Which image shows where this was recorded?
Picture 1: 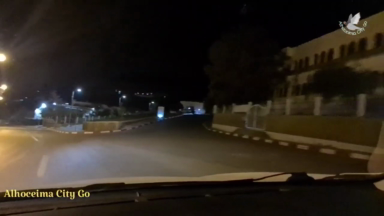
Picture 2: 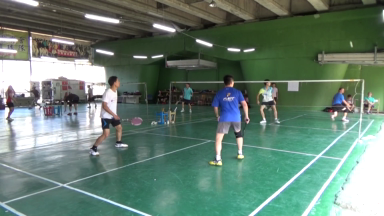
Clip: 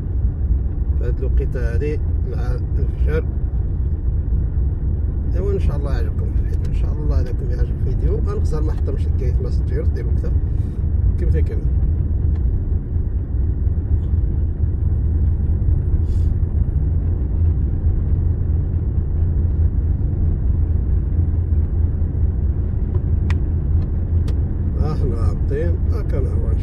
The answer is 1